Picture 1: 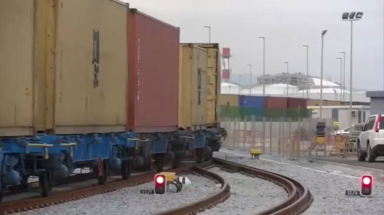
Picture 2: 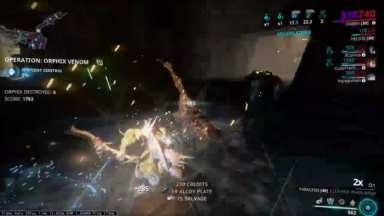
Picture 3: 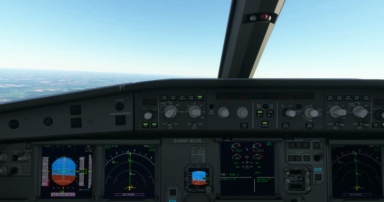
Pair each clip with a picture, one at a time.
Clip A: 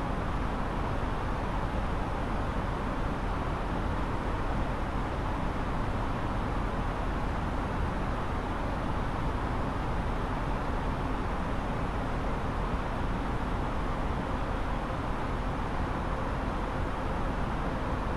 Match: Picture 3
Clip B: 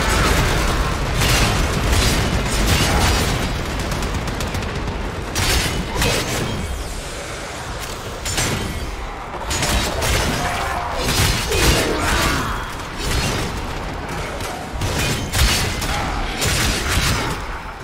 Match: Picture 2